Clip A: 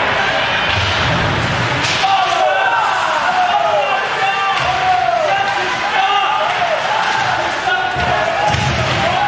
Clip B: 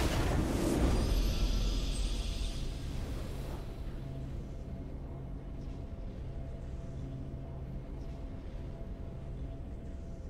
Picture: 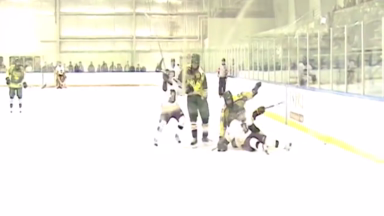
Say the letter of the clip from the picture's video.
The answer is A